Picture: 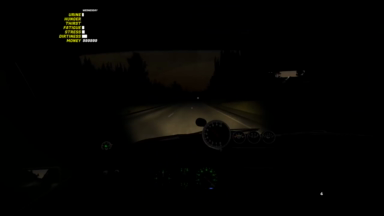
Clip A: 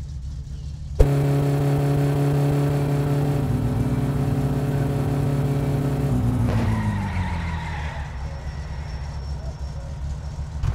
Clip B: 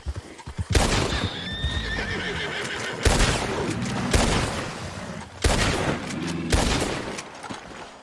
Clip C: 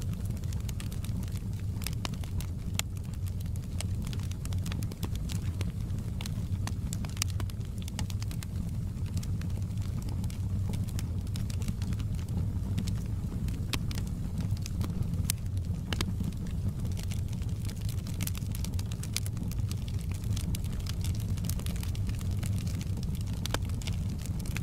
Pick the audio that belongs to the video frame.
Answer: A